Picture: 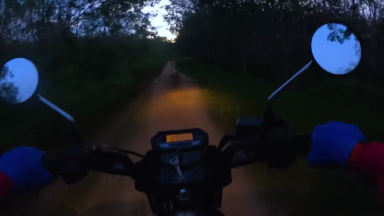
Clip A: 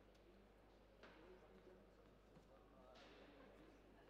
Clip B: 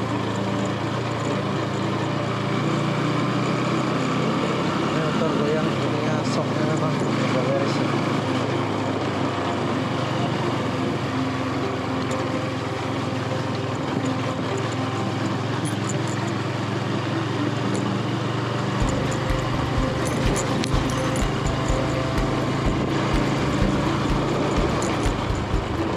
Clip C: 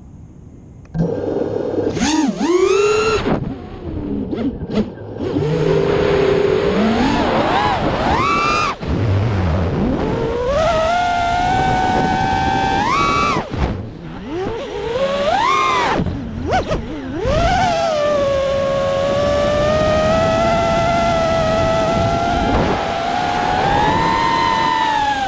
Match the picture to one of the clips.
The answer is B